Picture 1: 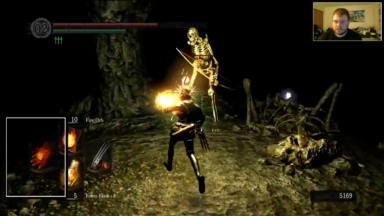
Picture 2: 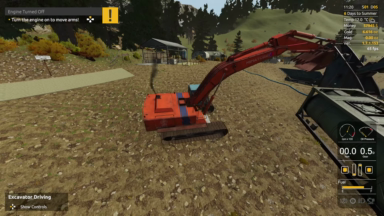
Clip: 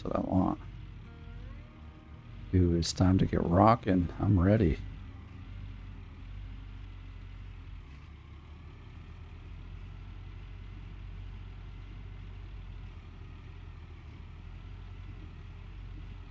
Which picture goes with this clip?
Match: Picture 2